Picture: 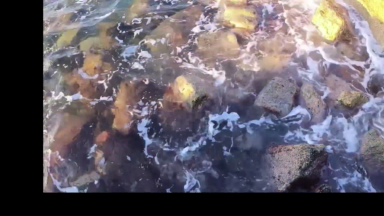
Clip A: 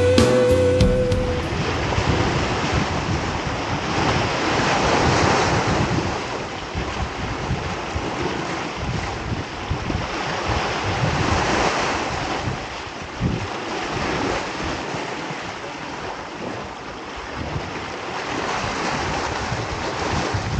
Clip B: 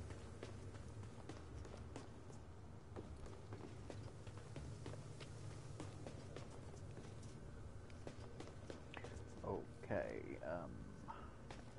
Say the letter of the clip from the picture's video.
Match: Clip A